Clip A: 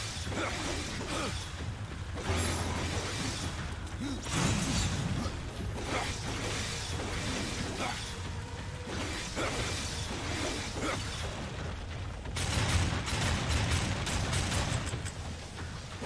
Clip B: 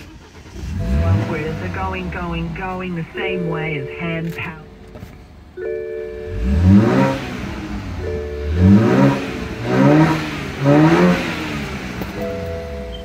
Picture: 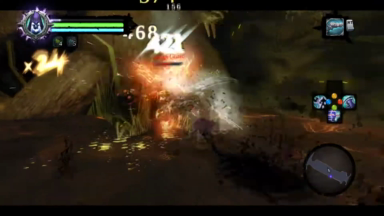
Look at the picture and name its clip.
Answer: A